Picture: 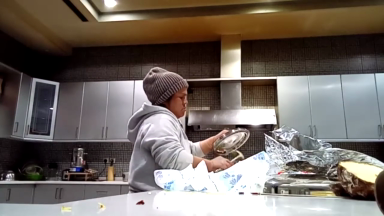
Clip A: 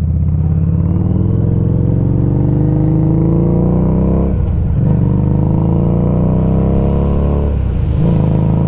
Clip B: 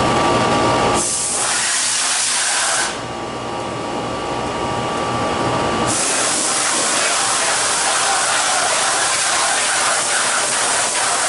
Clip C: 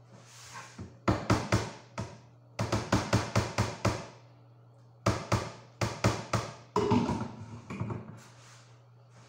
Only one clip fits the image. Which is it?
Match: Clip C